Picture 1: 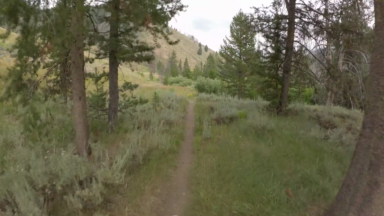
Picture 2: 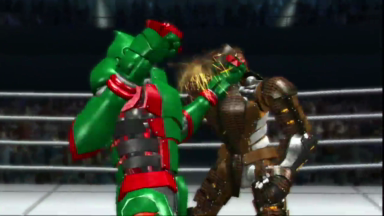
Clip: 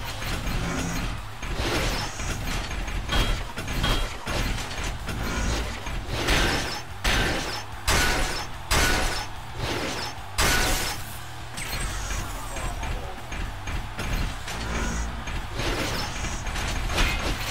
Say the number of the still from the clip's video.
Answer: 2